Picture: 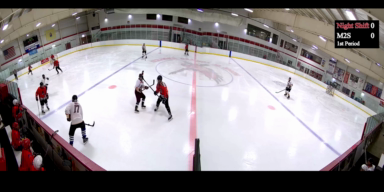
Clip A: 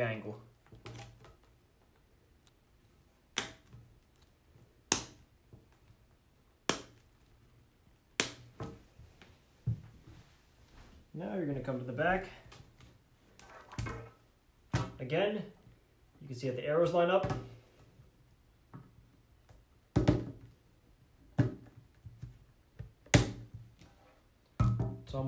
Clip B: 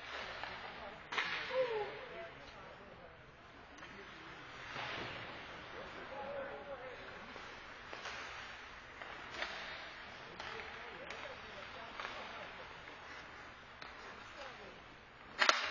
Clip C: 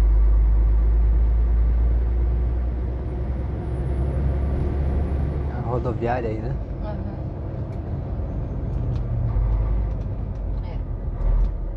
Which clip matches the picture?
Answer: B